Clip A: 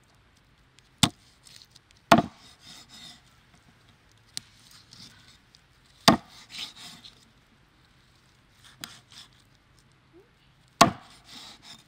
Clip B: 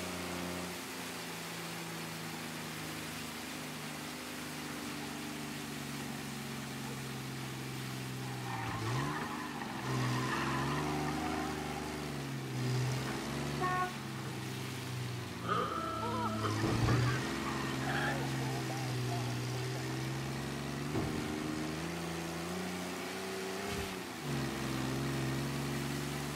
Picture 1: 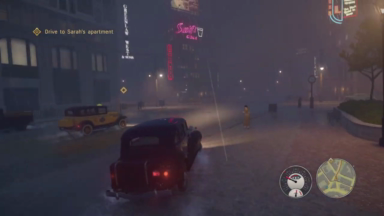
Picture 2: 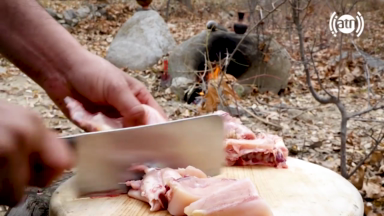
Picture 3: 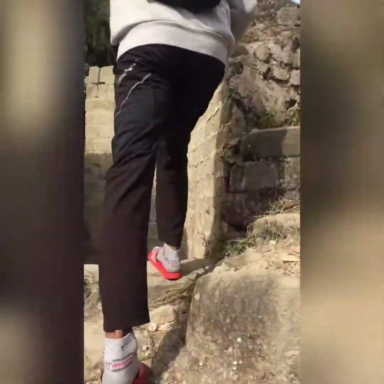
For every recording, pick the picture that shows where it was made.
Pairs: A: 2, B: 1